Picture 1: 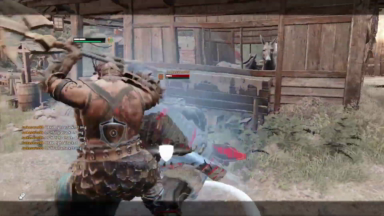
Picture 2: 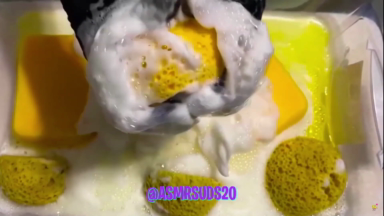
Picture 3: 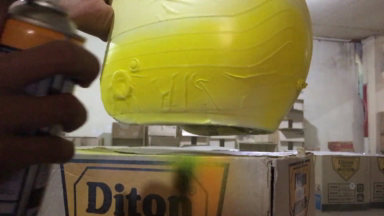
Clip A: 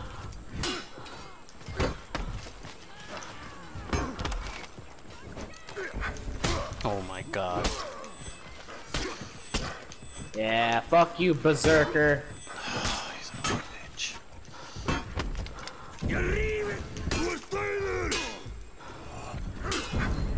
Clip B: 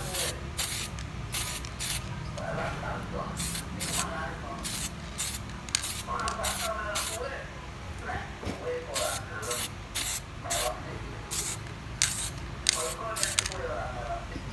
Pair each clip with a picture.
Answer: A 1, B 3